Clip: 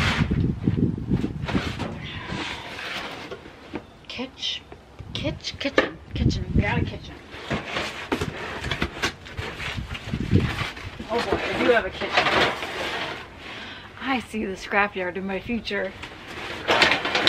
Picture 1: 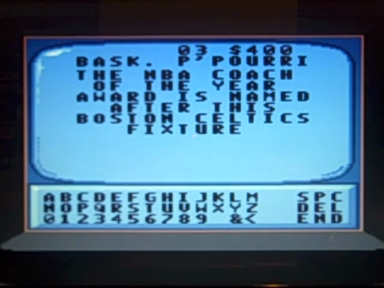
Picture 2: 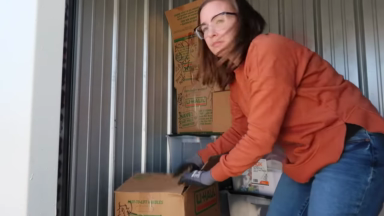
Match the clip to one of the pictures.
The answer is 2